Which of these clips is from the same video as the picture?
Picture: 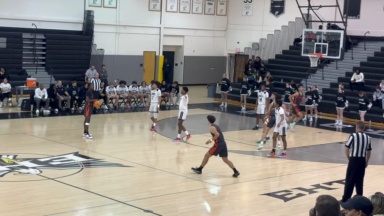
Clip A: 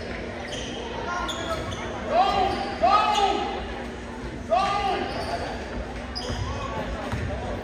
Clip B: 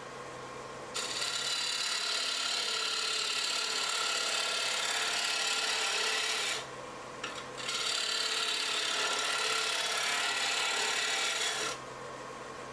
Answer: A